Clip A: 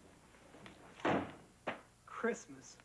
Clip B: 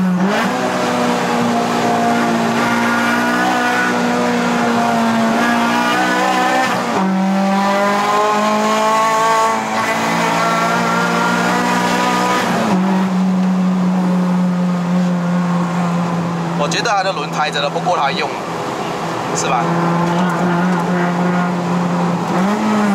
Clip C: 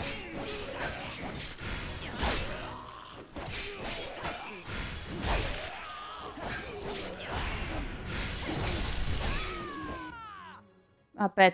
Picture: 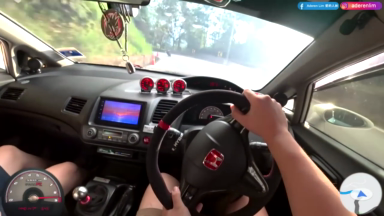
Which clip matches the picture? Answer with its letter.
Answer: B